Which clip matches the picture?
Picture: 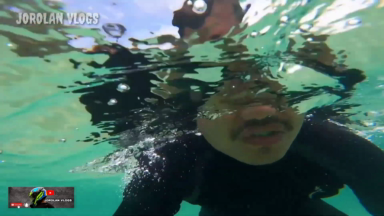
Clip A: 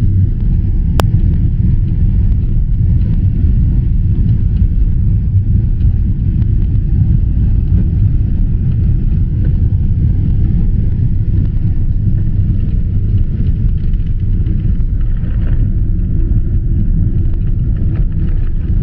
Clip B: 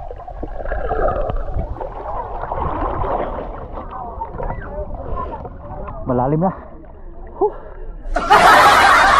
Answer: B